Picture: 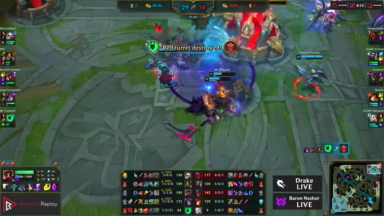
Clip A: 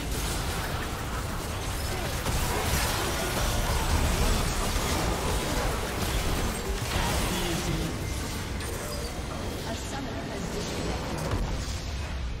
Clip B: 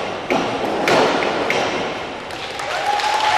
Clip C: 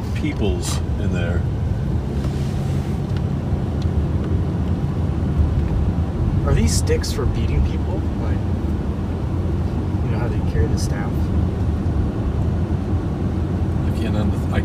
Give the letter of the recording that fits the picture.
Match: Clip A